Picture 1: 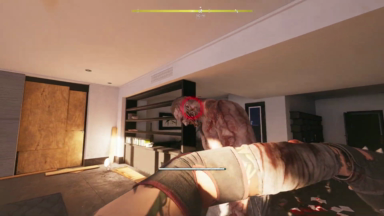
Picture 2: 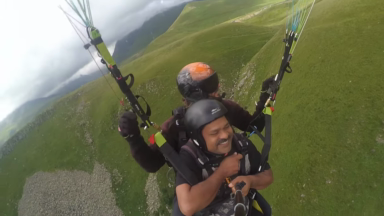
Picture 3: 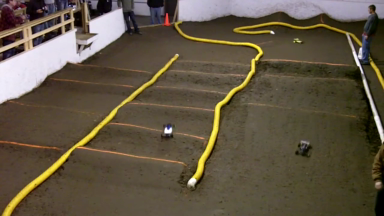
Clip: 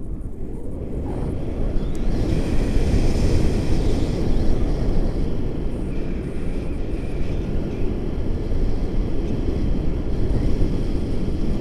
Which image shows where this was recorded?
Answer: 2